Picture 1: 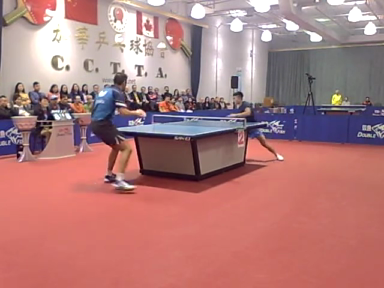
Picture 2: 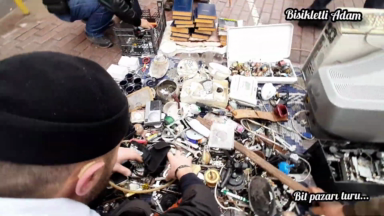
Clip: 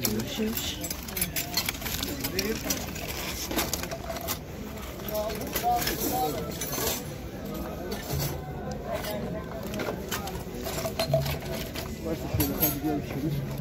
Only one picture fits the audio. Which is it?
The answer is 2